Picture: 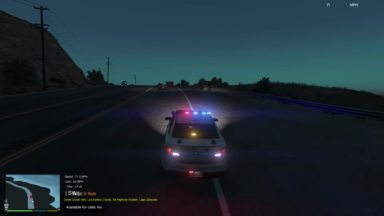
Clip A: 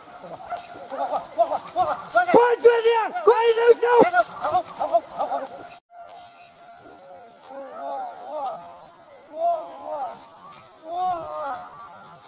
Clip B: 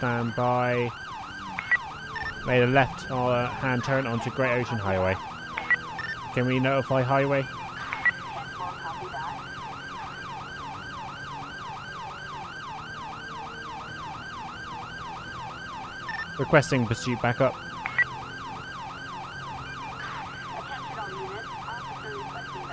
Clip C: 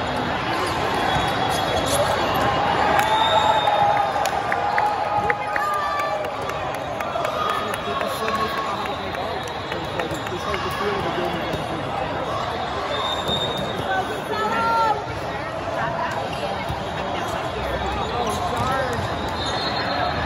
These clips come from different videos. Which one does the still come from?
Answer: B